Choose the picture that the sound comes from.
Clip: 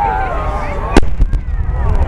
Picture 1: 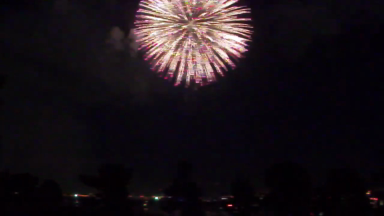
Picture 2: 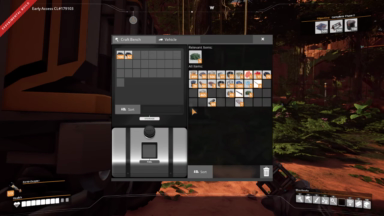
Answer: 1